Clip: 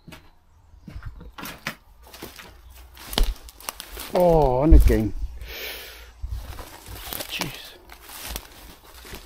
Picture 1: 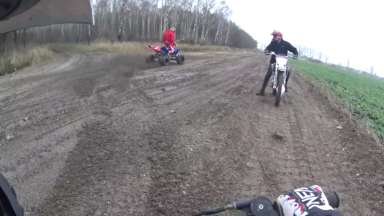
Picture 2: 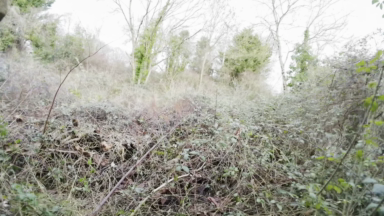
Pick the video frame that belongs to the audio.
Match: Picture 2